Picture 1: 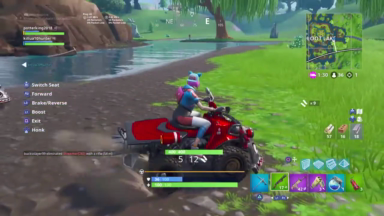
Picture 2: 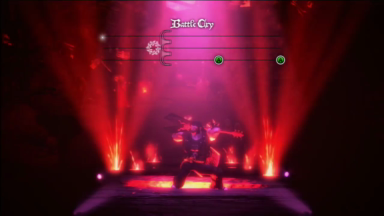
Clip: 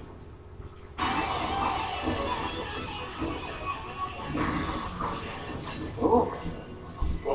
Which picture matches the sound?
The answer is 2